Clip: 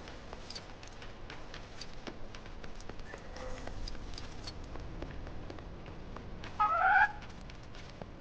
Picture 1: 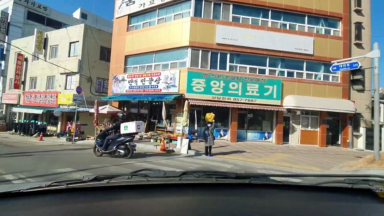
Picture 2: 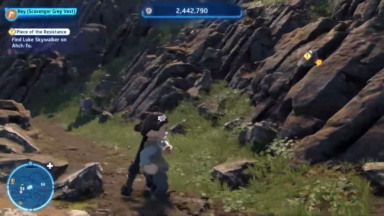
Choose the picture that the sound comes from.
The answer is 2